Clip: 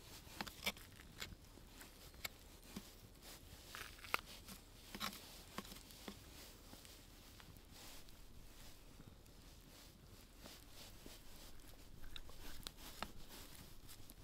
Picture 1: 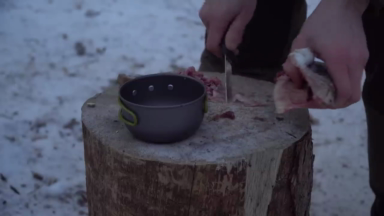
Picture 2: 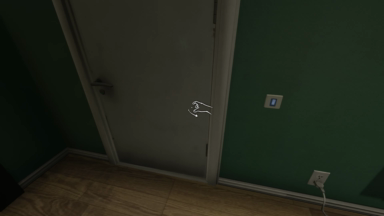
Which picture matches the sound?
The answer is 1